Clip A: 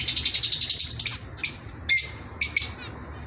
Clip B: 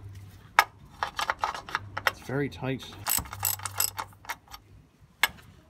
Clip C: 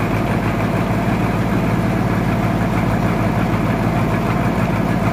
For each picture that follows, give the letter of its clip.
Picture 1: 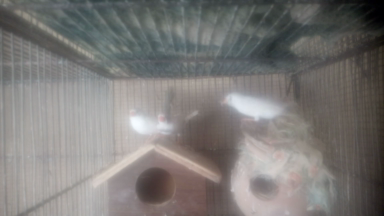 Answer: A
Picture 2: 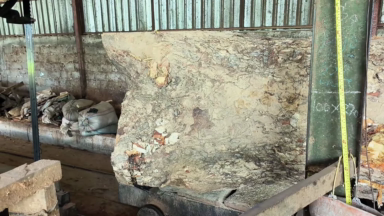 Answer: C